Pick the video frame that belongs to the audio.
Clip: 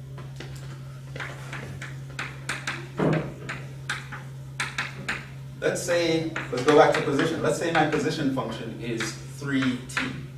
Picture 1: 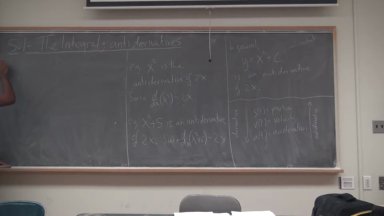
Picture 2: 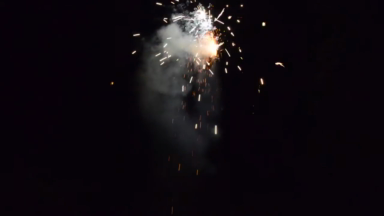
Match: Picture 1